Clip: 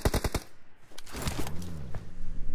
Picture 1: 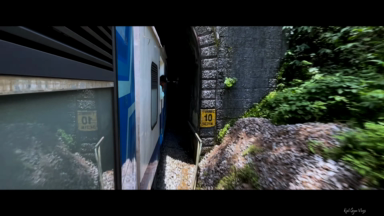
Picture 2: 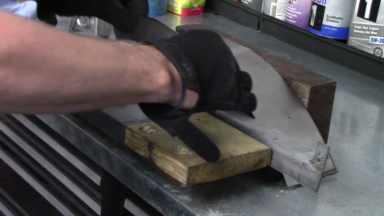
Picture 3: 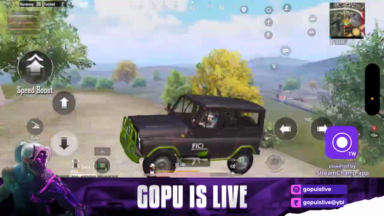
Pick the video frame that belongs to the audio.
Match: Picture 3